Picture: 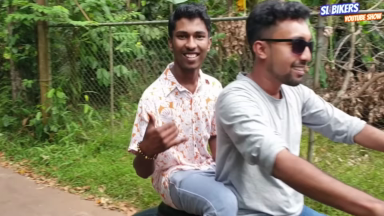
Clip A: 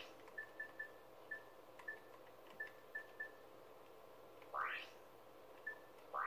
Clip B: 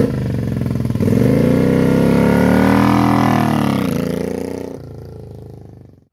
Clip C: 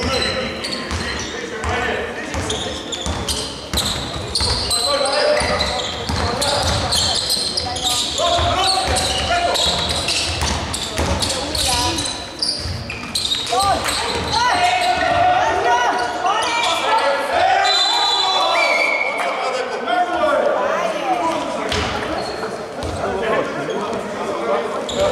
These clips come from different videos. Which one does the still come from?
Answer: B